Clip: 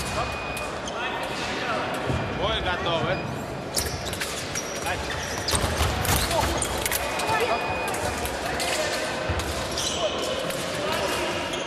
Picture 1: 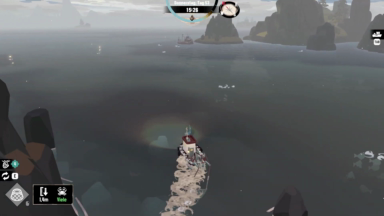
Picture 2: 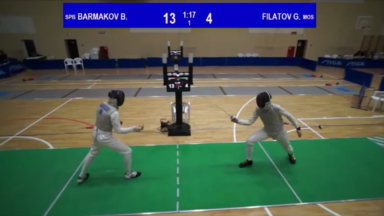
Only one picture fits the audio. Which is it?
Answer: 2